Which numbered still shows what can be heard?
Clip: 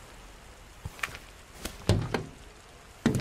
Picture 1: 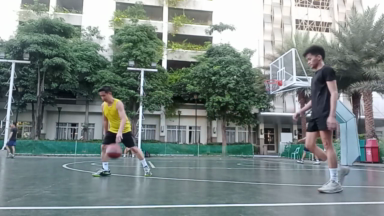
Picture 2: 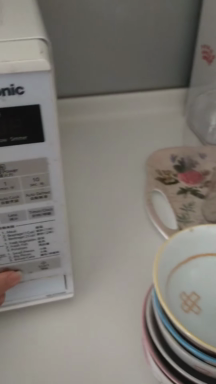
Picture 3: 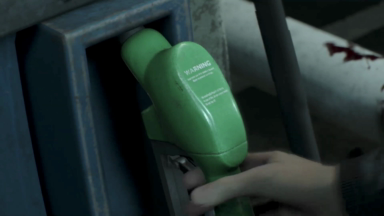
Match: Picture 3